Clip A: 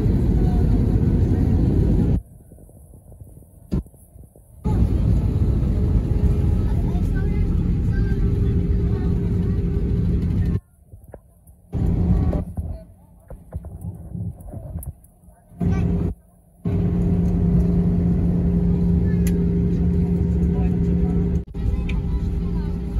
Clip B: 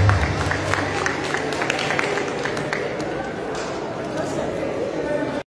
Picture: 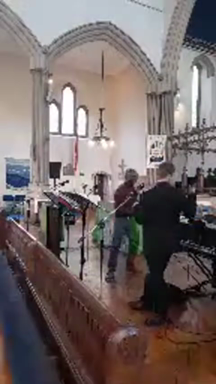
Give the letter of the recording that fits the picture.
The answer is B